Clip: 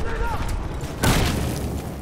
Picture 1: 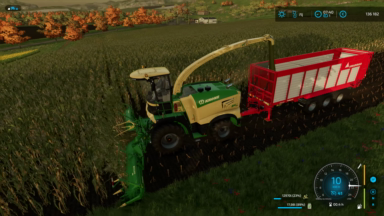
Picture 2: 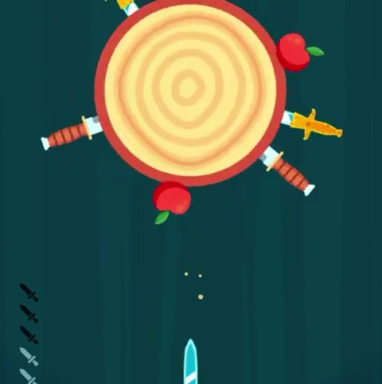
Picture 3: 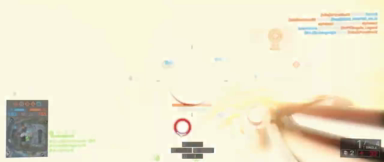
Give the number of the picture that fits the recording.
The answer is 3